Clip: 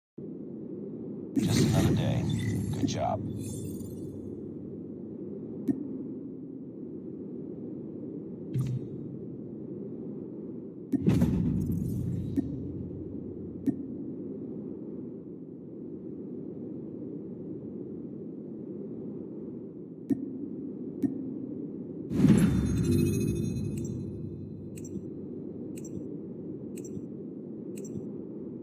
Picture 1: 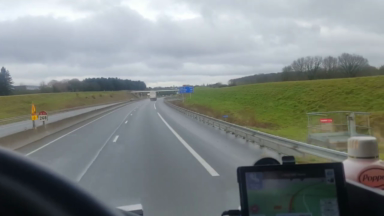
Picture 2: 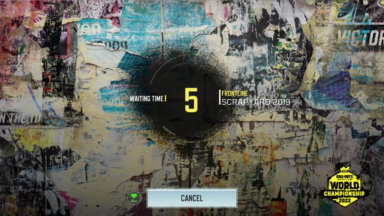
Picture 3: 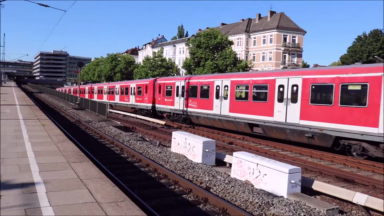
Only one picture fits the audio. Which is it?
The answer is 2